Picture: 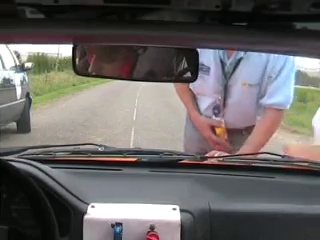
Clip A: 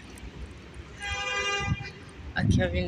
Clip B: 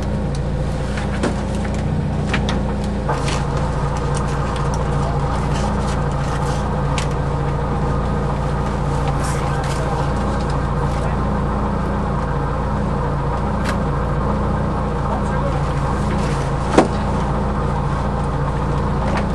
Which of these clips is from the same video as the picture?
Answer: B